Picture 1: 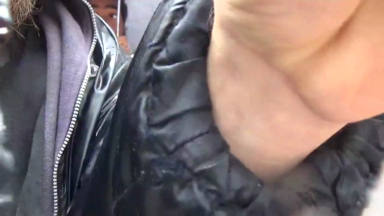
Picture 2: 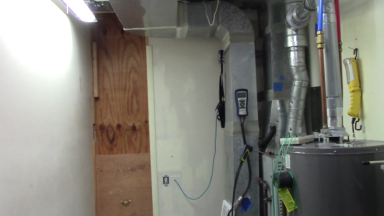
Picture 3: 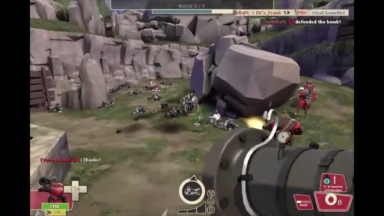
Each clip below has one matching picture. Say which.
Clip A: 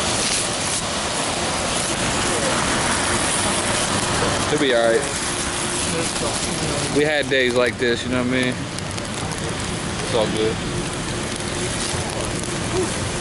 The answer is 1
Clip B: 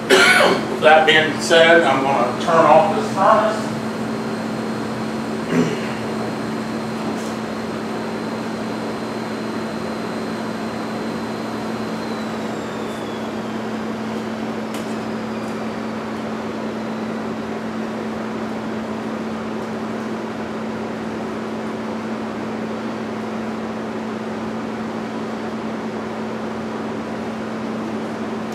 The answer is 2